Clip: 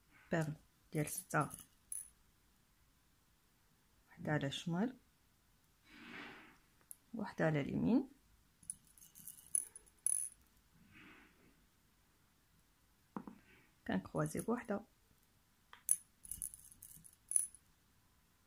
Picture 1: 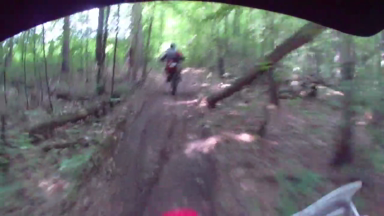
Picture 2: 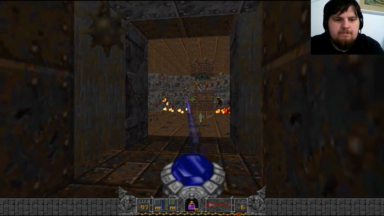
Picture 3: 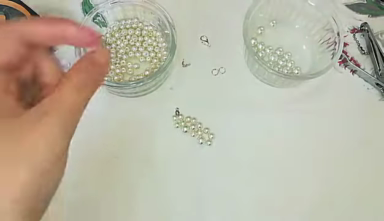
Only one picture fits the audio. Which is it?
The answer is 3